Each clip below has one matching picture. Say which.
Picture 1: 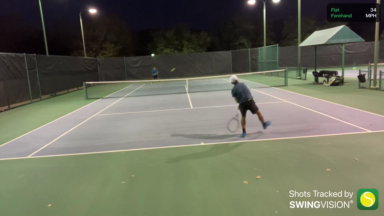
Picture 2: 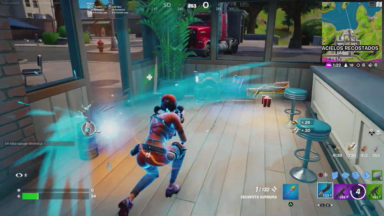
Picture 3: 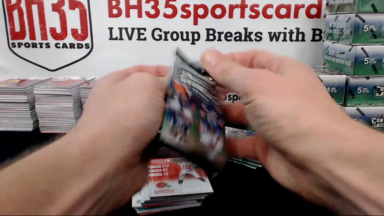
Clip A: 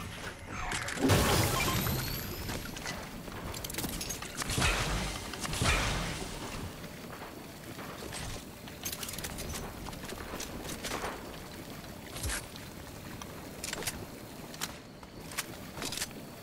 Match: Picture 2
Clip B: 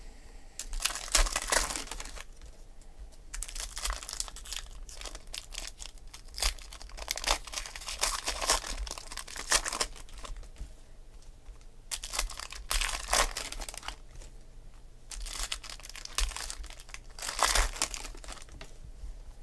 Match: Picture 3